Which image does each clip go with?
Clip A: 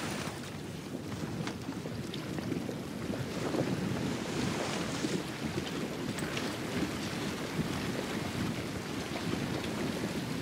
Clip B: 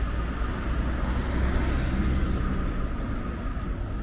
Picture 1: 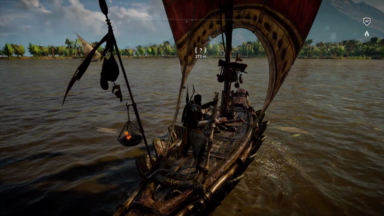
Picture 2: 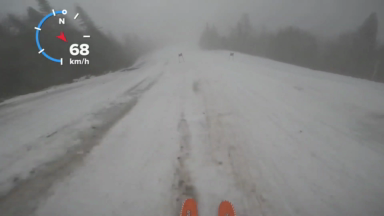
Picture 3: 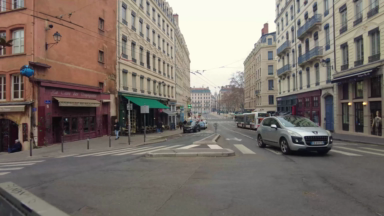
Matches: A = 1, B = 3